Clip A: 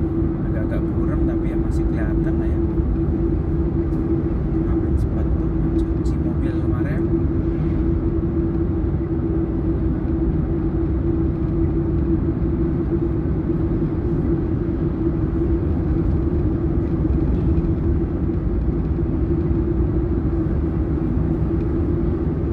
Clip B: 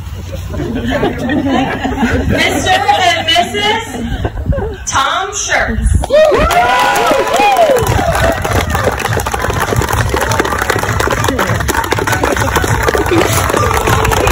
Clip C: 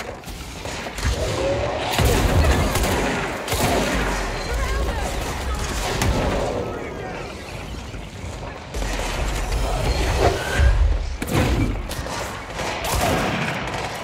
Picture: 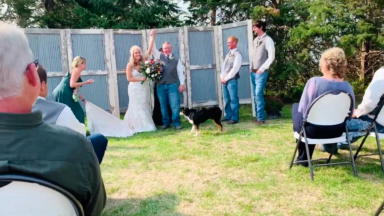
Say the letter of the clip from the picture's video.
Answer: B